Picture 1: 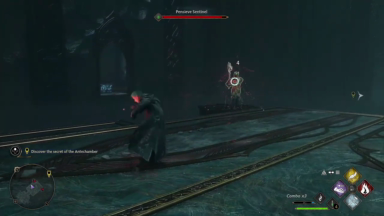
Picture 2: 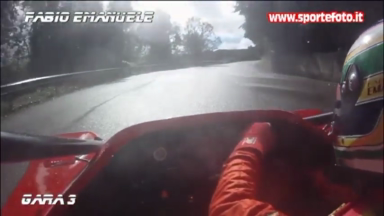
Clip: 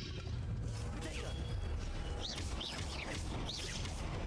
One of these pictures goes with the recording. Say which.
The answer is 1